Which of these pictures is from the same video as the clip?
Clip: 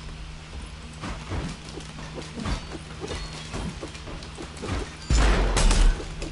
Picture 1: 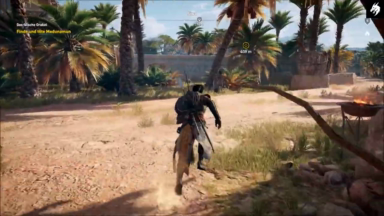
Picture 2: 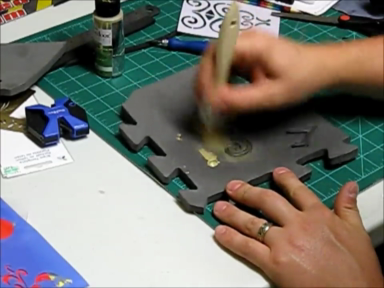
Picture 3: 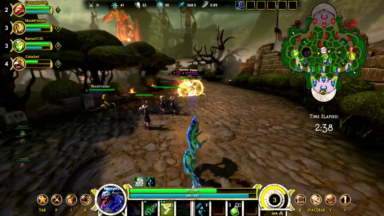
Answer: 3